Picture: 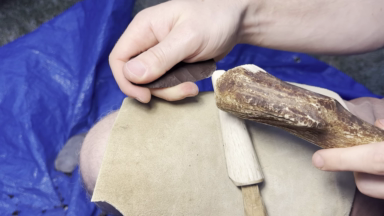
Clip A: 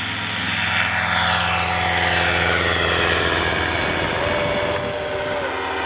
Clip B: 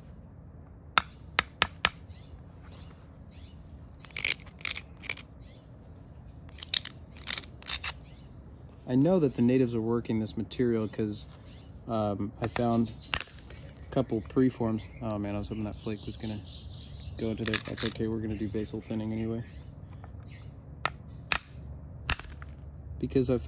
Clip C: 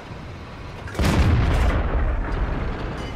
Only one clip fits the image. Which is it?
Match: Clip B